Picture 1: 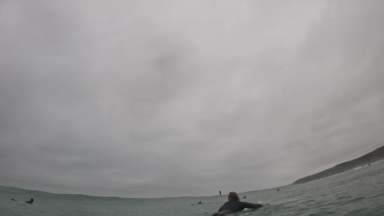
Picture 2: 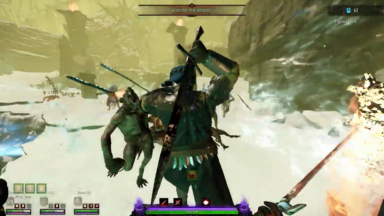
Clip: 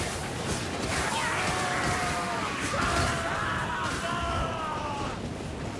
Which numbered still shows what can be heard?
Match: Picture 2